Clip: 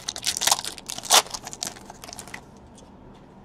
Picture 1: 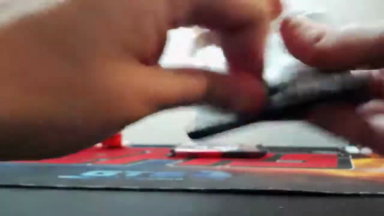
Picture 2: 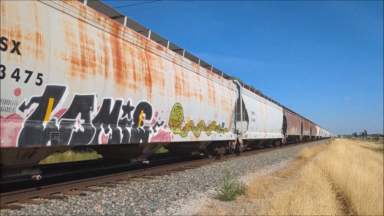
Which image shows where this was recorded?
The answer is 1